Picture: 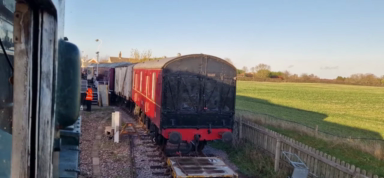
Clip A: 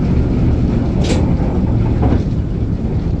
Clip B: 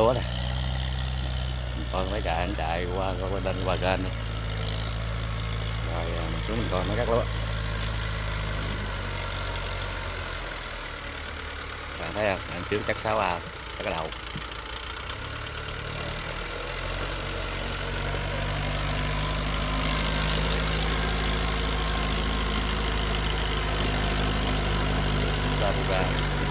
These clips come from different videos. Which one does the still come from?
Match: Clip A